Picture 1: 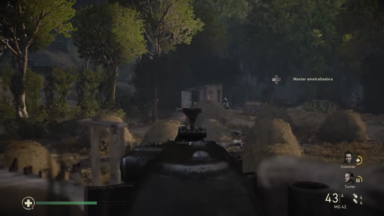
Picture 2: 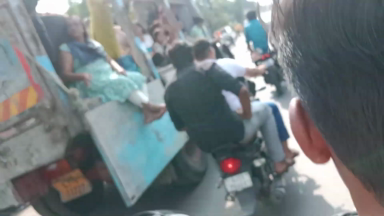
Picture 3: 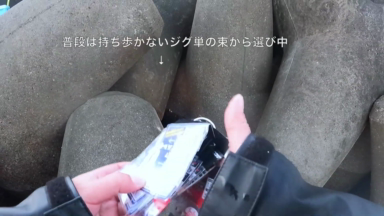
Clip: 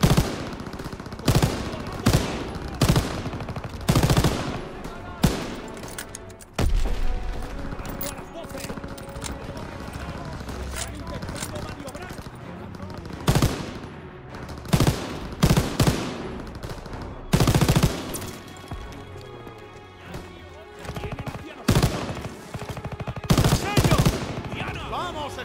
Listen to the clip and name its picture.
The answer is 1